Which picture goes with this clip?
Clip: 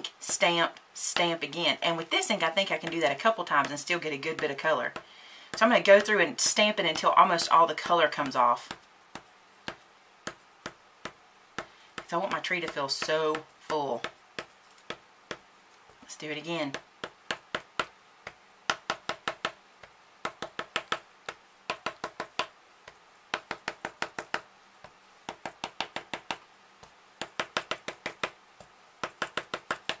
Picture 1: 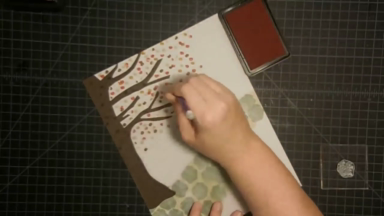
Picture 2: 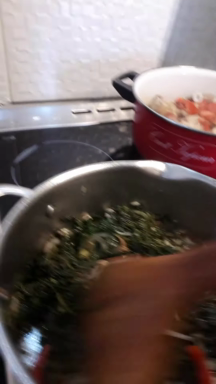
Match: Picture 1